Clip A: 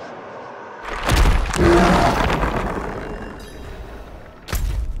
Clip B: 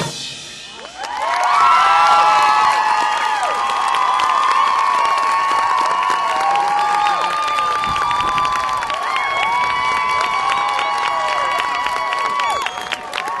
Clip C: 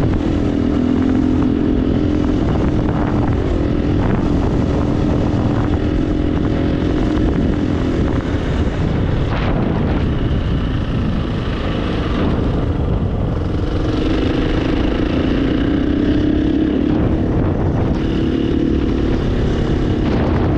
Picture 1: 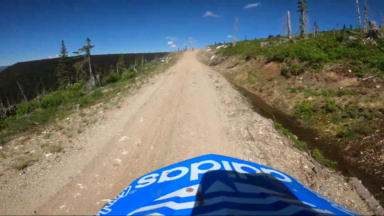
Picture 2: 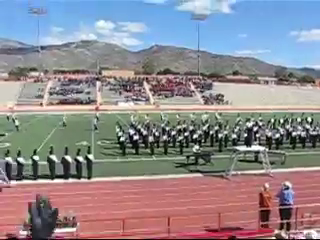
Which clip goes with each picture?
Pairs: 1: C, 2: B